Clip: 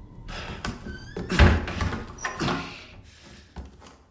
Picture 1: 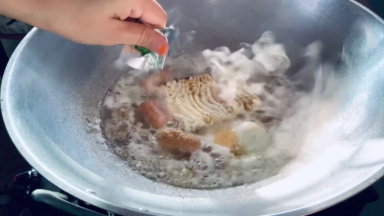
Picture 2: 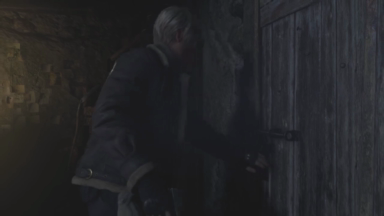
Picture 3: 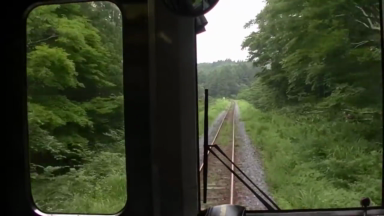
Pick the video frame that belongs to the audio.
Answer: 2